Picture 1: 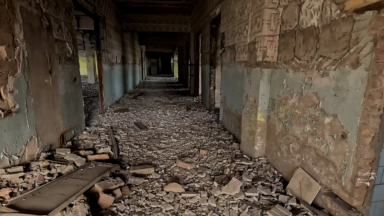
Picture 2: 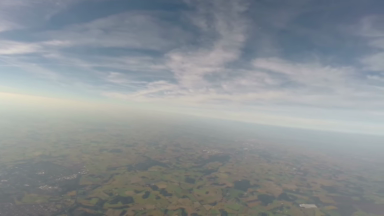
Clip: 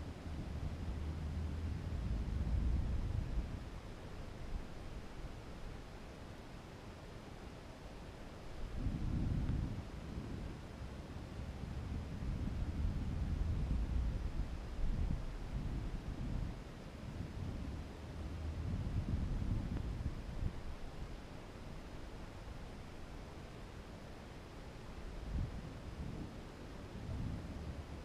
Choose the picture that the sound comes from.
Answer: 2